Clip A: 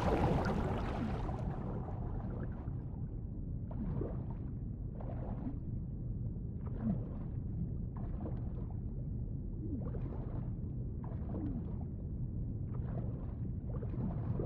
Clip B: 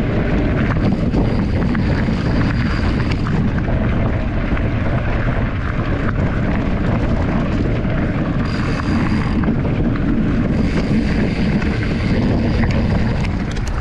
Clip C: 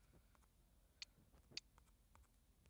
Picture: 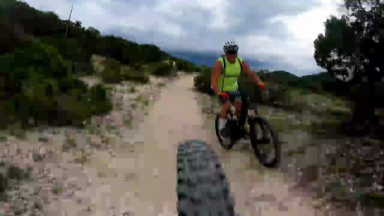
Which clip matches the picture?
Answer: B